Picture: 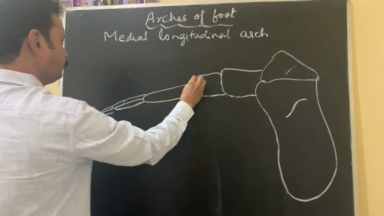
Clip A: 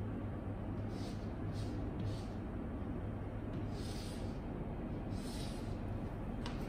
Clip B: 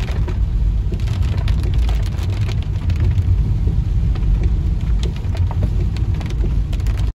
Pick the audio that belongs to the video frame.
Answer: A